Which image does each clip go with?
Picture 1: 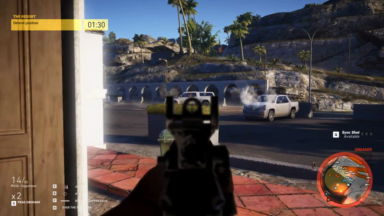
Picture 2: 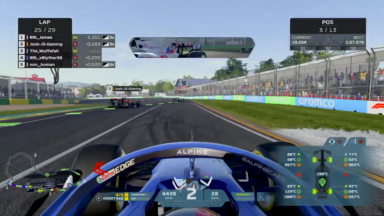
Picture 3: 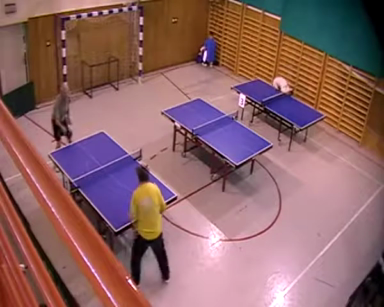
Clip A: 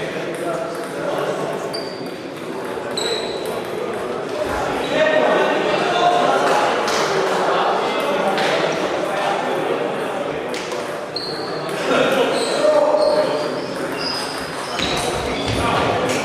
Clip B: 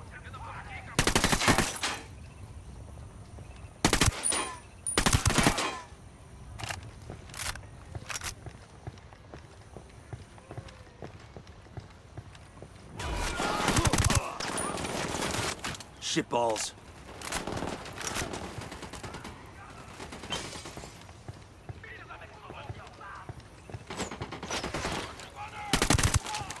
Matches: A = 3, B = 1